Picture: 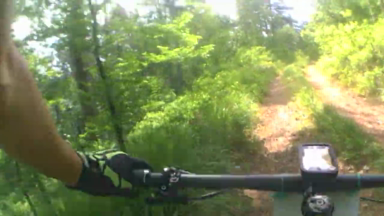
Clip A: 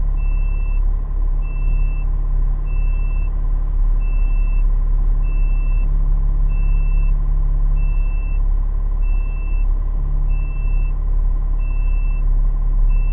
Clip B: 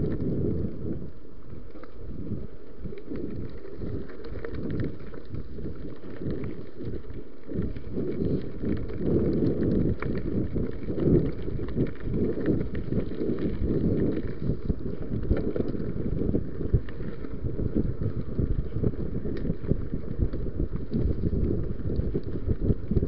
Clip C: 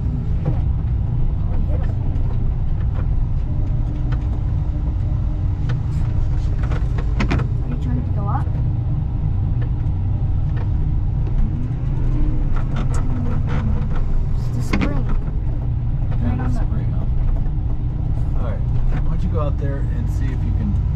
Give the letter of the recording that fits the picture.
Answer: B